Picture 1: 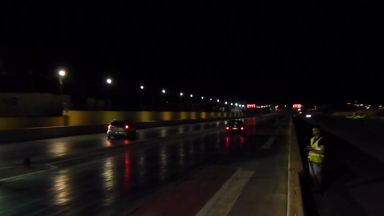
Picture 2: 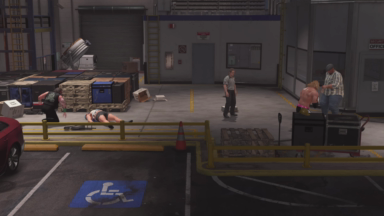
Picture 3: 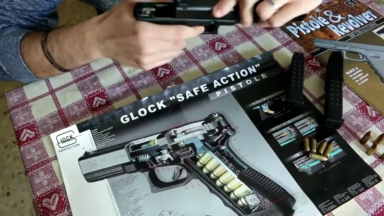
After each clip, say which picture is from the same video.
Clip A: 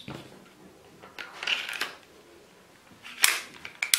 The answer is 3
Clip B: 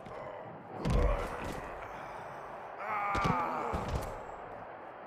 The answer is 2